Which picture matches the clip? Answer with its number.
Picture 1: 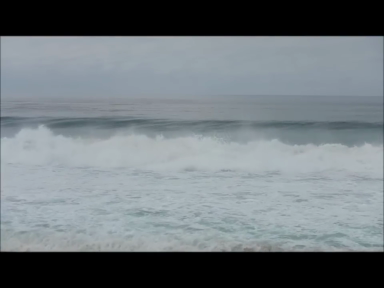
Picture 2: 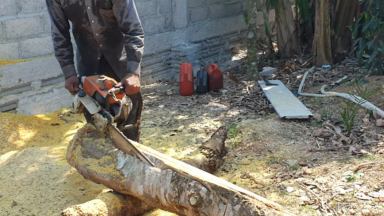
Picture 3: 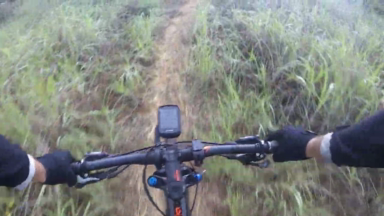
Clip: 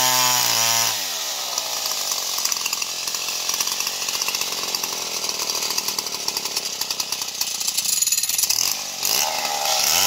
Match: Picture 2